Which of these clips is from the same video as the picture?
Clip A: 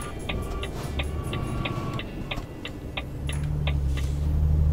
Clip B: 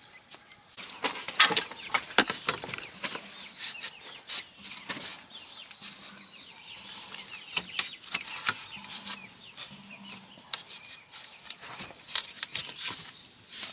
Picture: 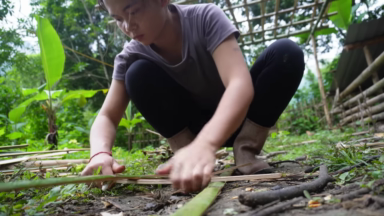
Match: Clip B